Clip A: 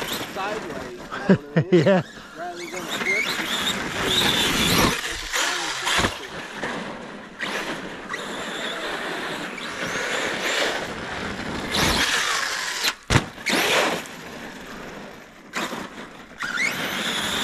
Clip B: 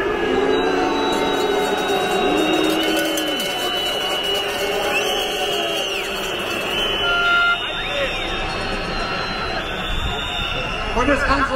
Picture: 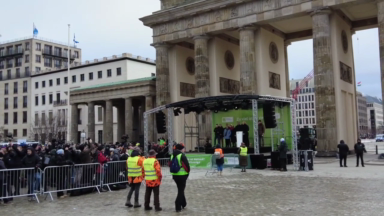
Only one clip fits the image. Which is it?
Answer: B